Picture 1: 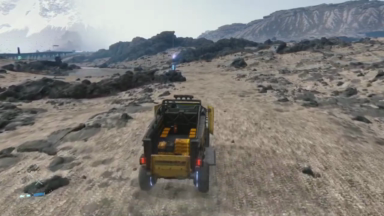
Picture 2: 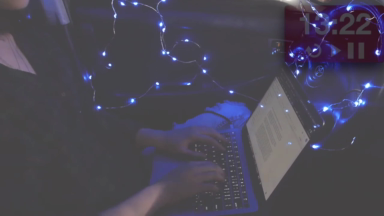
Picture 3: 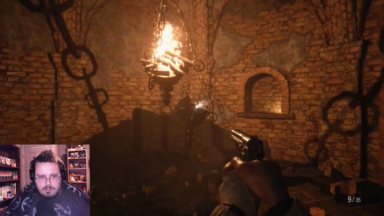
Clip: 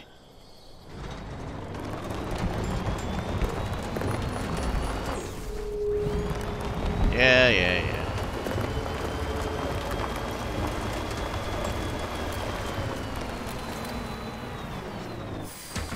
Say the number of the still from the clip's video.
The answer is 1